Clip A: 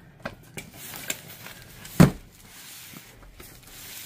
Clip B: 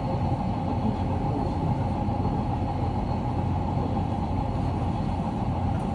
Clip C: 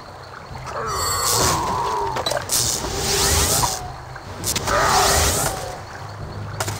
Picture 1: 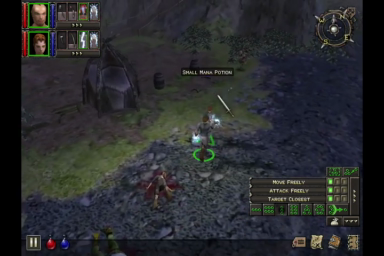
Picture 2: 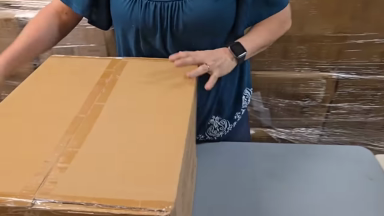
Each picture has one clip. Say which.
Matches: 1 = C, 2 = A